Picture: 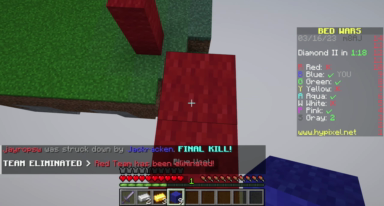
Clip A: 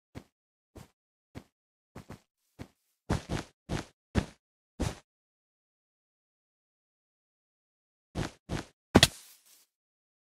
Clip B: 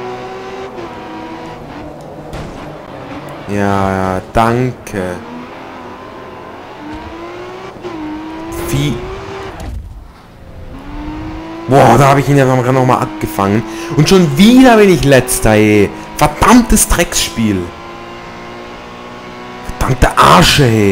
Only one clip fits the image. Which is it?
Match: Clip A